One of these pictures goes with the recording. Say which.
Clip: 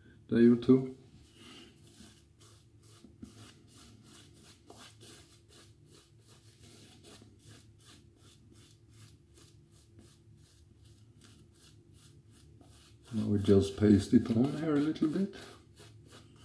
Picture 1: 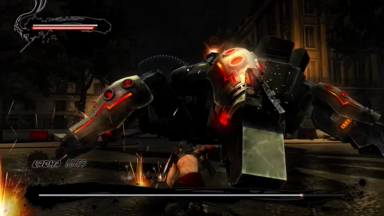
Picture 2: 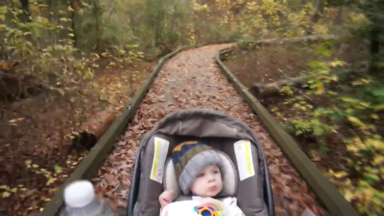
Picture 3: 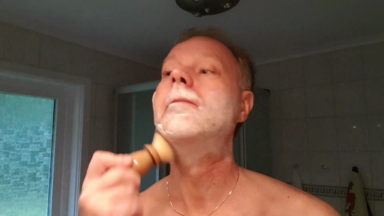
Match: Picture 3